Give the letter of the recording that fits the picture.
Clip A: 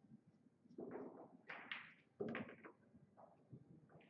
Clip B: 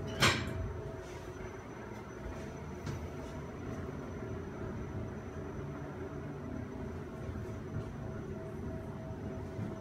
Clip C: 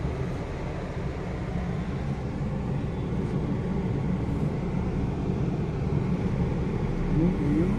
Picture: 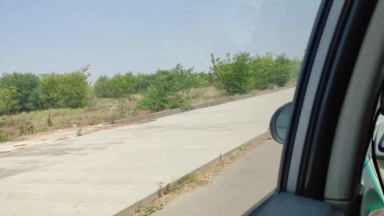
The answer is C